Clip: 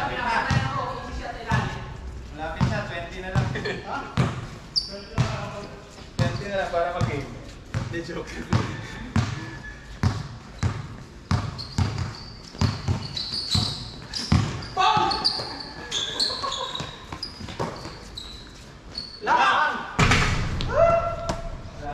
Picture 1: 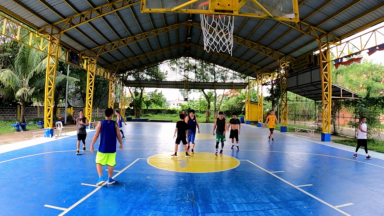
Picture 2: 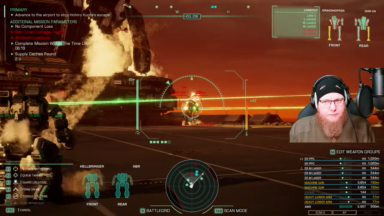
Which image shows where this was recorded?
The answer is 1